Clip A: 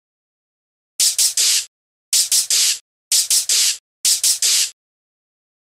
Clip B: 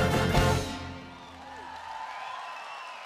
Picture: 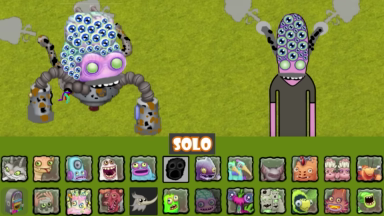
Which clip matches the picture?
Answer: A